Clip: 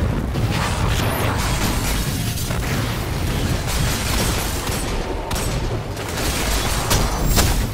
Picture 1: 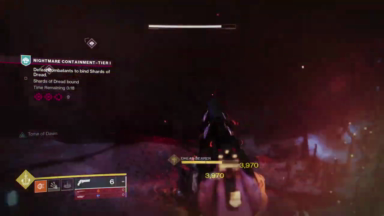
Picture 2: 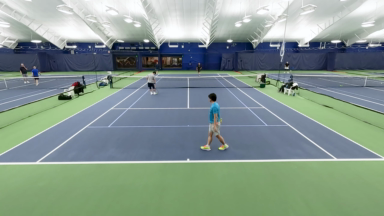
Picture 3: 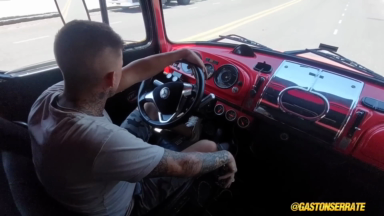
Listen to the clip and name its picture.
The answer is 1